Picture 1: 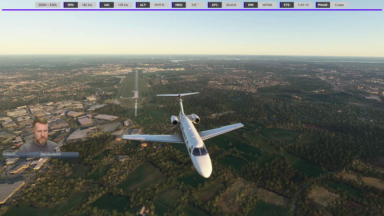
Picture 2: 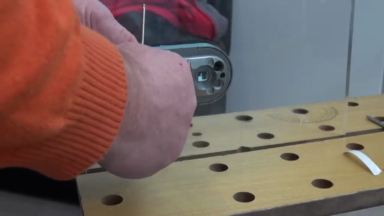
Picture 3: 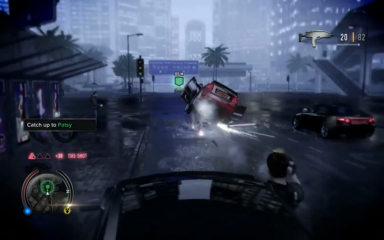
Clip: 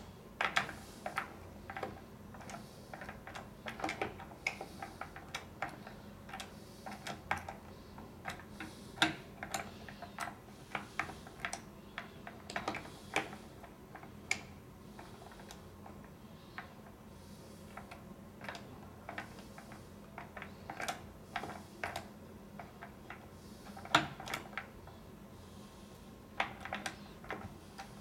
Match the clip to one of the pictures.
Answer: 2